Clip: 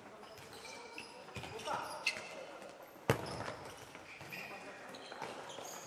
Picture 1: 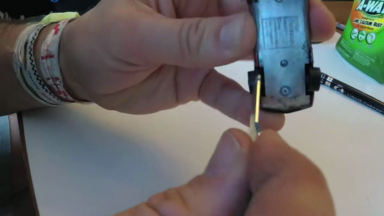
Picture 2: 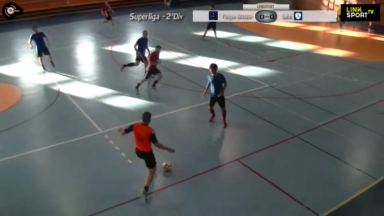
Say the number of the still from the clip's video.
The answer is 2